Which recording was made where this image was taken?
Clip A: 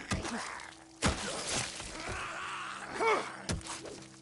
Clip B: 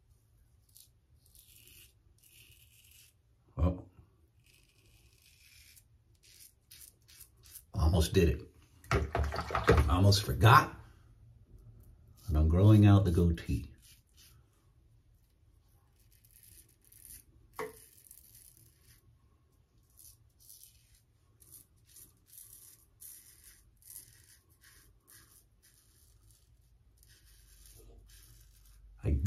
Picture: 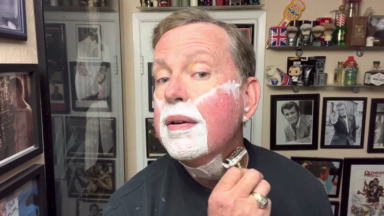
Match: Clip B